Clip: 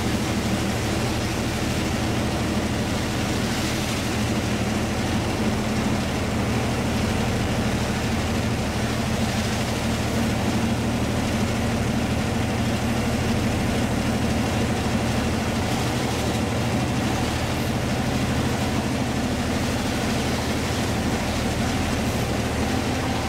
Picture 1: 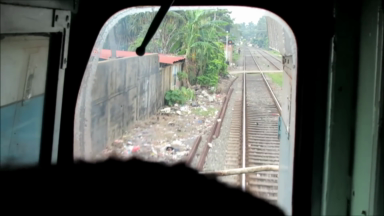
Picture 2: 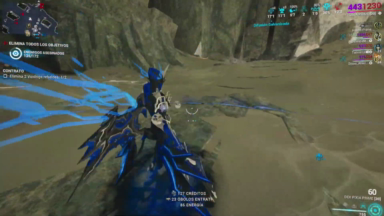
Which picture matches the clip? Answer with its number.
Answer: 1